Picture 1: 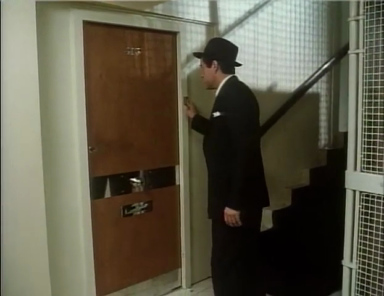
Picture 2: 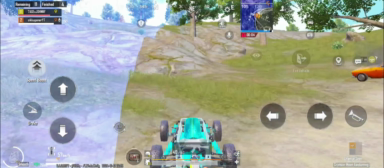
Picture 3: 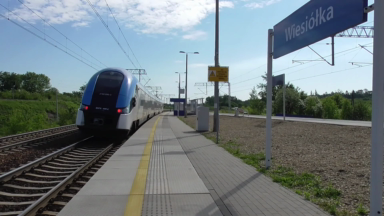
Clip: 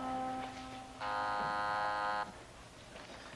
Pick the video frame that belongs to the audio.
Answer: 1